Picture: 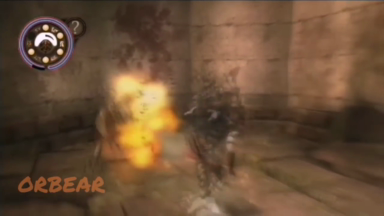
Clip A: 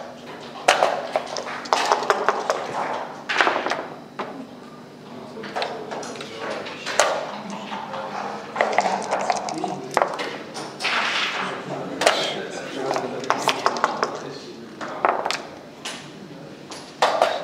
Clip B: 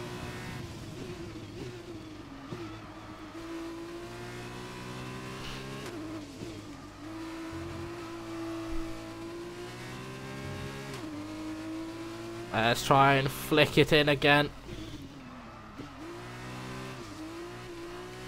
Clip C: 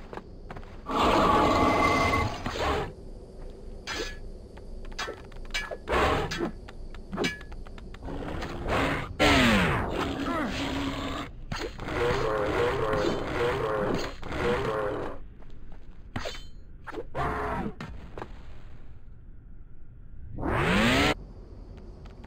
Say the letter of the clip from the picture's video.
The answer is C